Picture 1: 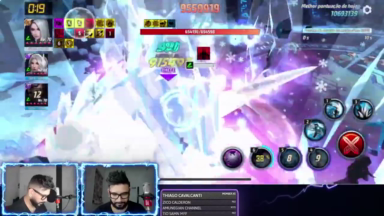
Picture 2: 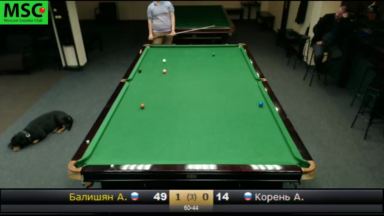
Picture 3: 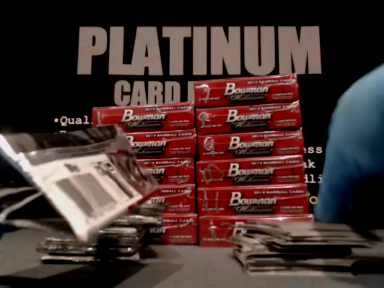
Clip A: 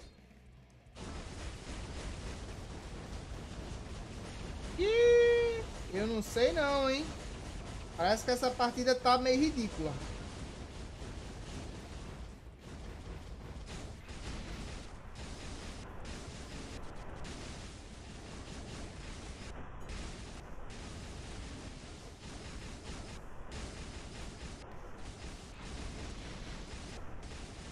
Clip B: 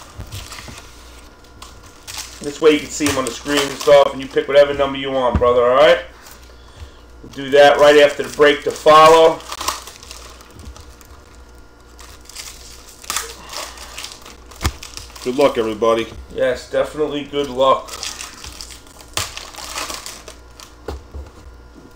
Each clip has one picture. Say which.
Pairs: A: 1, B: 3